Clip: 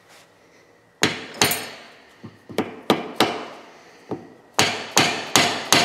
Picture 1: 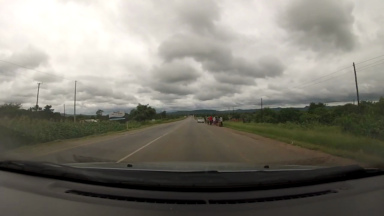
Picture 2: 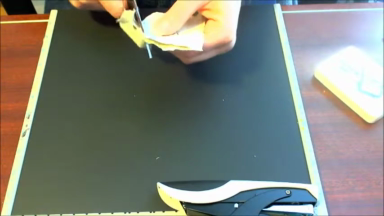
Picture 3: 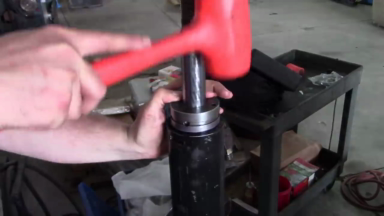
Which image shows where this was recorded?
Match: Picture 3